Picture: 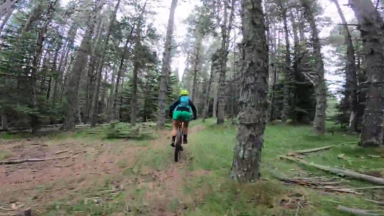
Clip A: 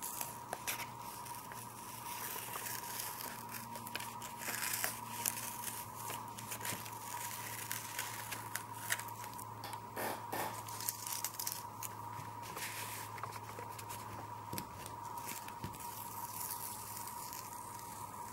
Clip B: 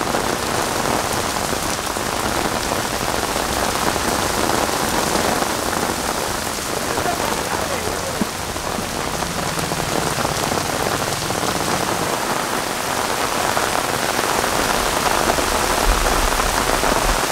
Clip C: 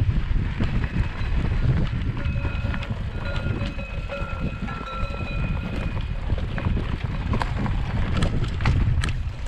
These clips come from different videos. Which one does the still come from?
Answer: C